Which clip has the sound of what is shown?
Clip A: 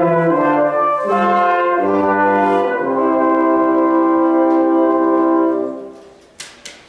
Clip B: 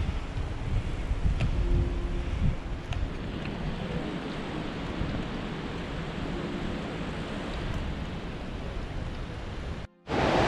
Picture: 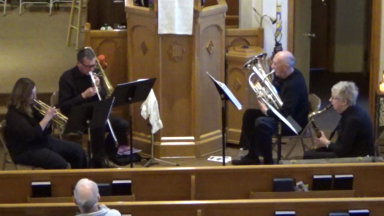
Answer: A